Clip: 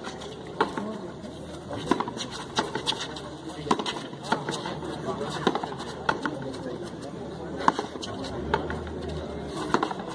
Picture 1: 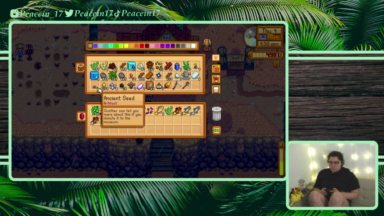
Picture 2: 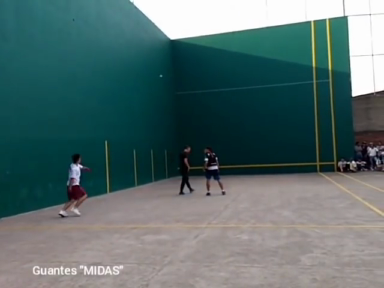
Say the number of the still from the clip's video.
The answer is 2